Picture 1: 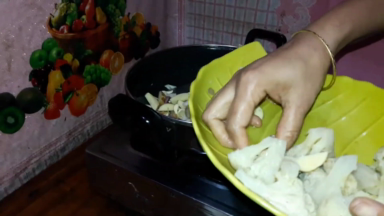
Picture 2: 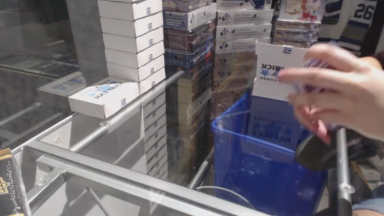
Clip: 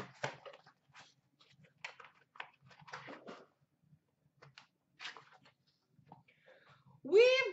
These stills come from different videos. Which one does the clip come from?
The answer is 2